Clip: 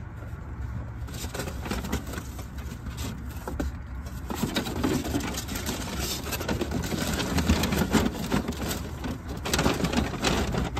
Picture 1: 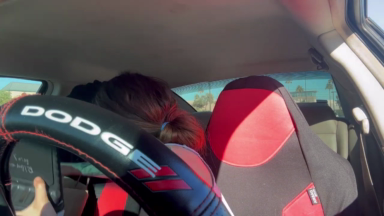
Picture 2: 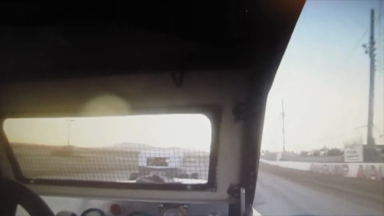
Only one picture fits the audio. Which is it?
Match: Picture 1